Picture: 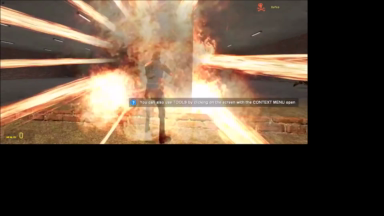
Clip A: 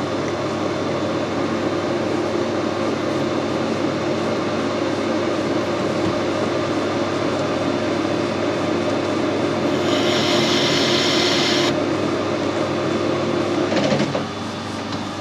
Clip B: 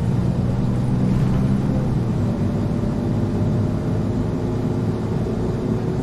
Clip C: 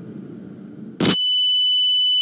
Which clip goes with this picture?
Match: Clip C